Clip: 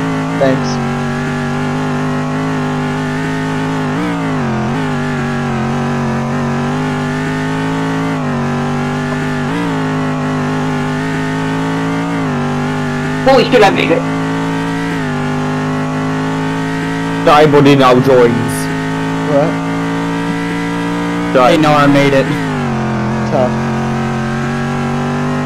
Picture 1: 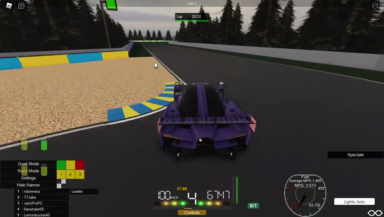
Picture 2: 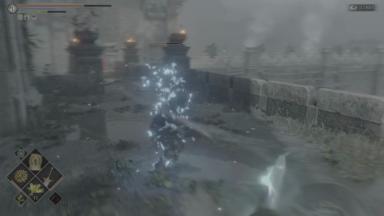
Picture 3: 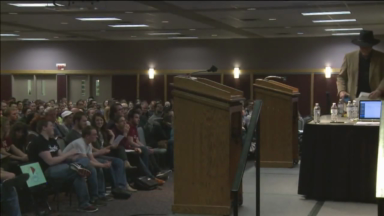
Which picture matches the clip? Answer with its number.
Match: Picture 1